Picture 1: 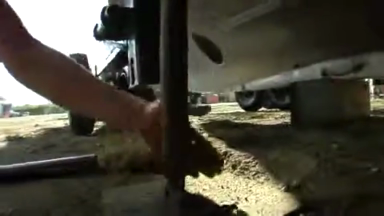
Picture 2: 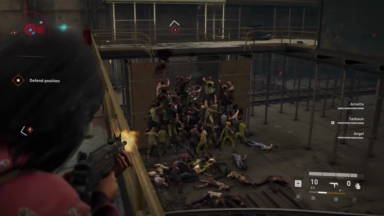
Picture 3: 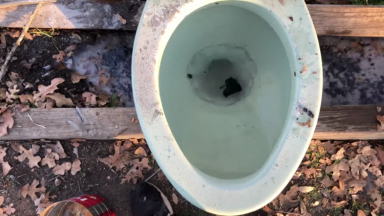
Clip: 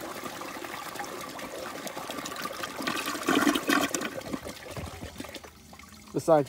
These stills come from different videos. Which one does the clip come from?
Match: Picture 3